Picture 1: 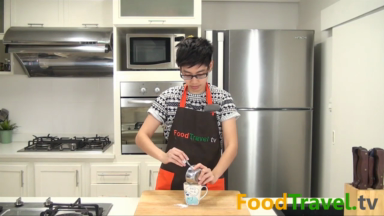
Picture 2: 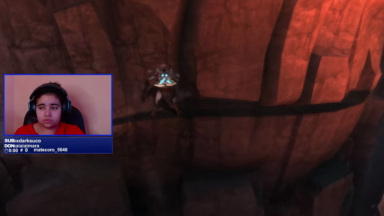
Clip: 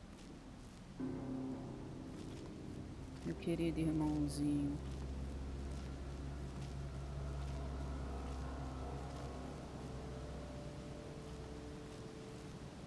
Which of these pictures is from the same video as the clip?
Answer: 2